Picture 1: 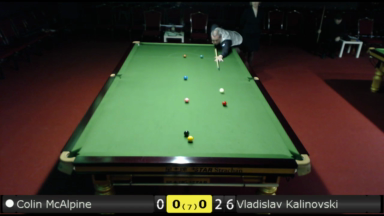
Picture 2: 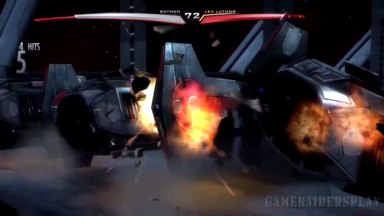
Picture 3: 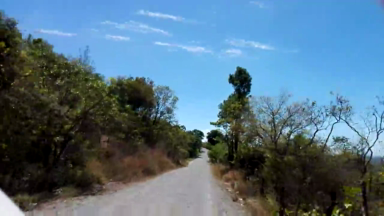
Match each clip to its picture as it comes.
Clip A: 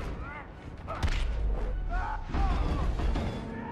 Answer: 2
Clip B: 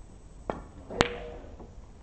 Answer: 1